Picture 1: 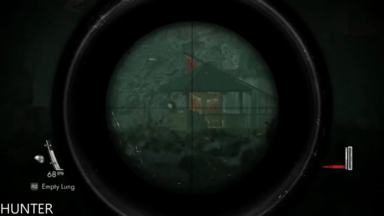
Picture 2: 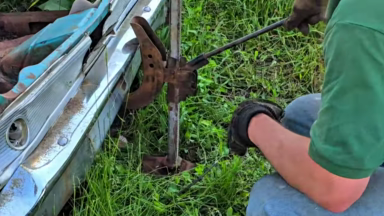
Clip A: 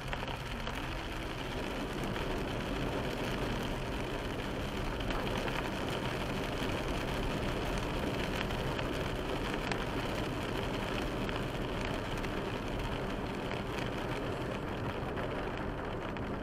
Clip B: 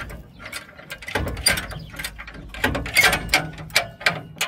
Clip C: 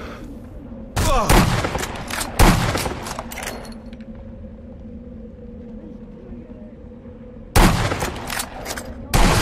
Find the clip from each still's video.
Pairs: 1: C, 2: B